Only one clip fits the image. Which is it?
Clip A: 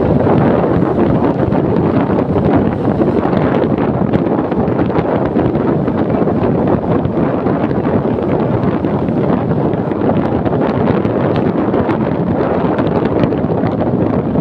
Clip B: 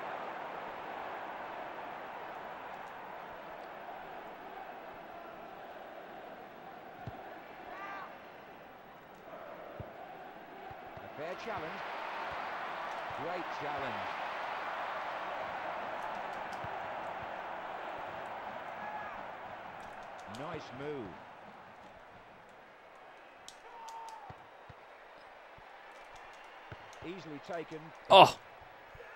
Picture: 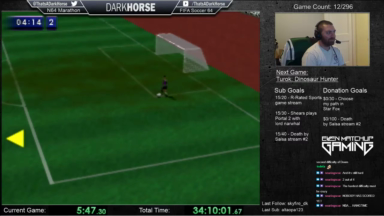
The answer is B